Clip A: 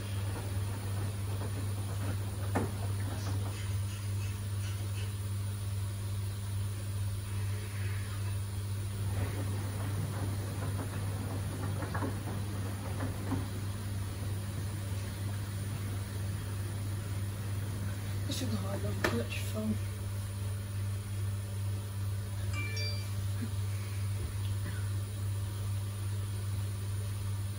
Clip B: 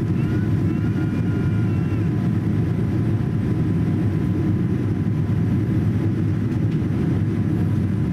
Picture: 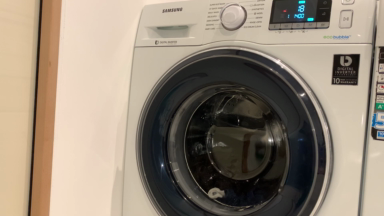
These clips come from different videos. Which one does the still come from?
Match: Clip A